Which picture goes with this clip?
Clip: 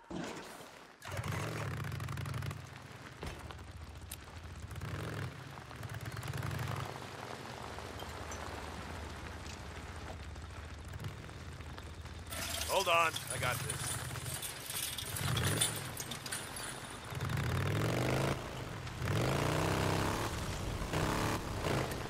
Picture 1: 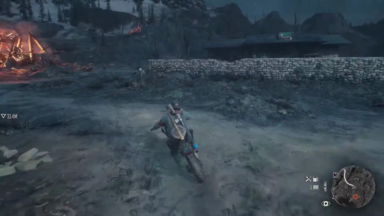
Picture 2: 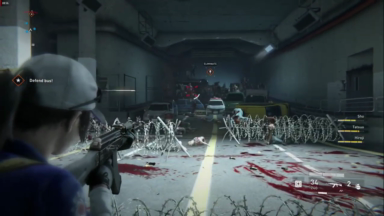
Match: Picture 1